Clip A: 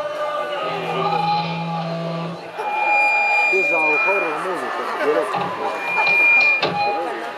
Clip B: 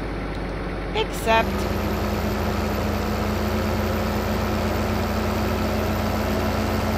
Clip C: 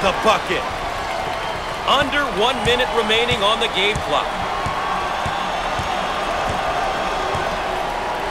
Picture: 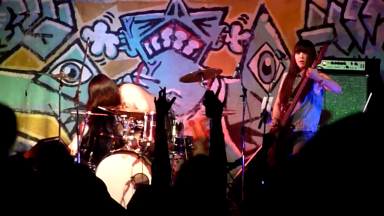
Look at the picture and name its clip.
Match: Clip A